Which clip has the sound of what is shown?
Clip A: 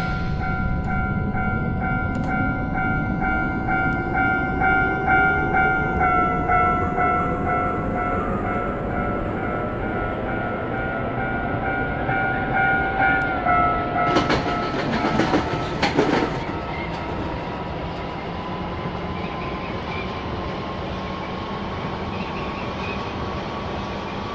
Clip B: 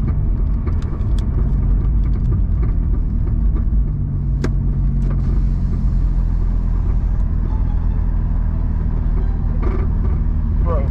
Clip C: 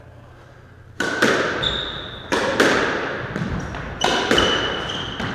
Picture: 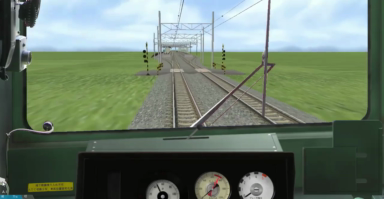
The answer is A